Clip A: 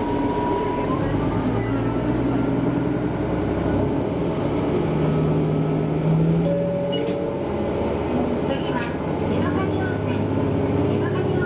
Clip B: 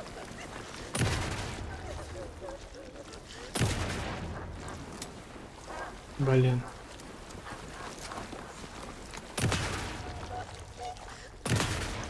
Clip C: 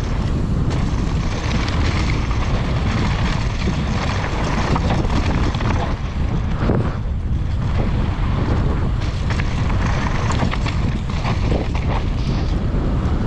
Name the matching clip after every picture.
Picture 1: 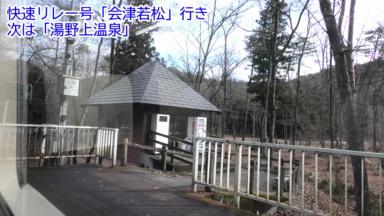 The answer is A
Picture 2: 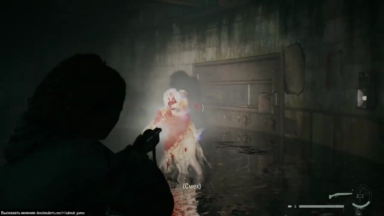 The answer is B